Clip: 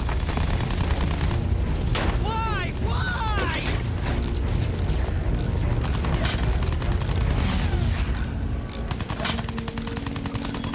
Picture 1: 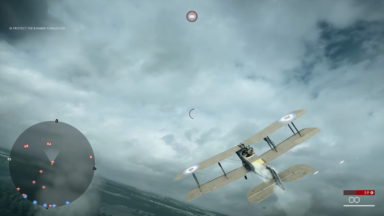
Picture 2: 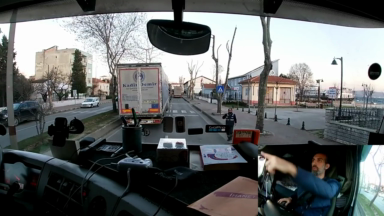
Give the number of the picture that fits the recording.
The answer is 1